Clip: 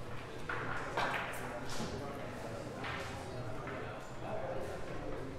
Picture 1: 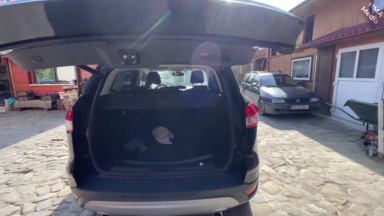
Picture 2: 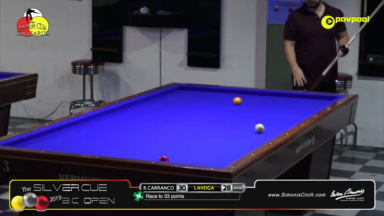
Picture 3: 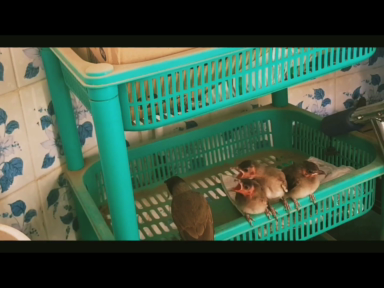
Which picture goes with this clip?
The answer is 2